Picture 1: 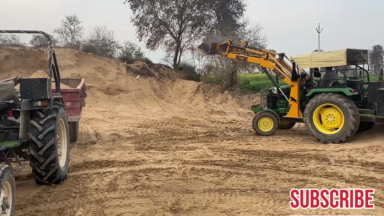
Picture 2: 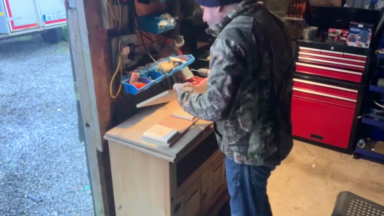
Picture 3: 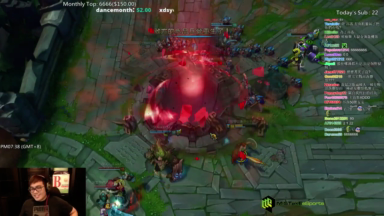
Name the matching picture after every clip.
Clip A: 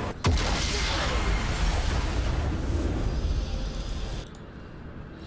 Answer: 3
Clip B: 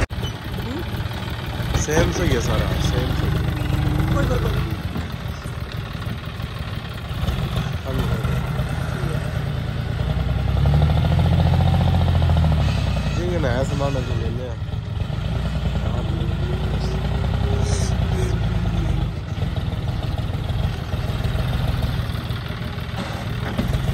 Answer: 1